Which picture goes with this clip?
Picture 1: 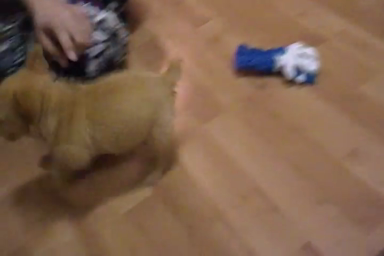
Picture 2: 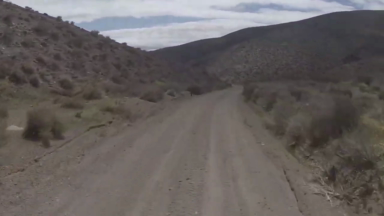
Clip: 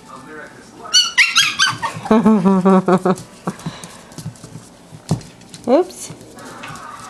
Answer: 1